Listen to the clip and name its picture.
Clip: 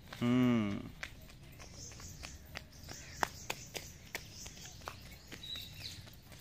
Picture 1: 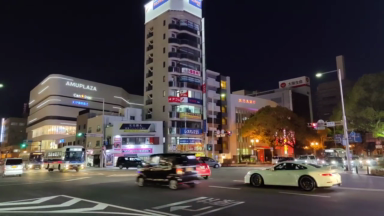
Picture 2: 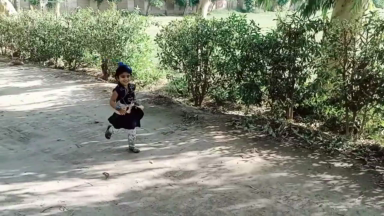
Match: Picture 2